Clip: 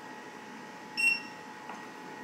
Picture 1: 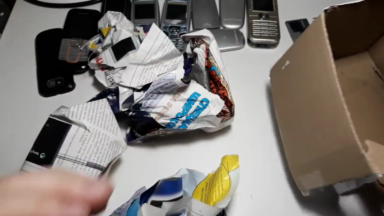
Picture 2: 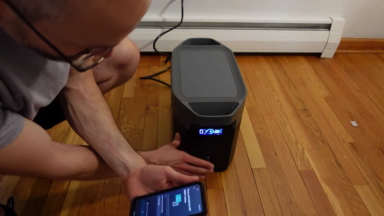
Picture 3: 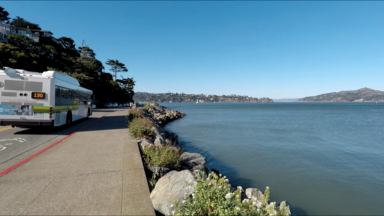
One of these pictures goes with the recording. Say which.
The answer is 2